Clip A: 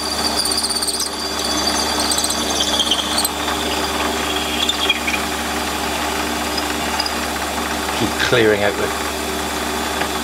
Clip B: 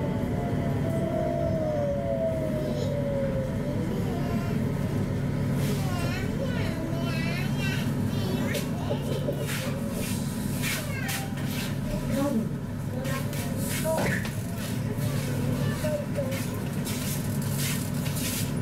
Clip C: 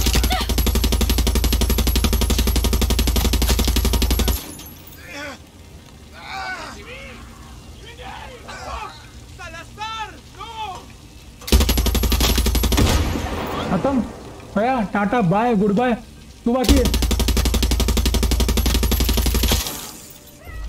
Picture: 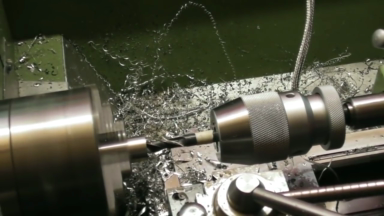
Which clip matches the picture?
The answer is A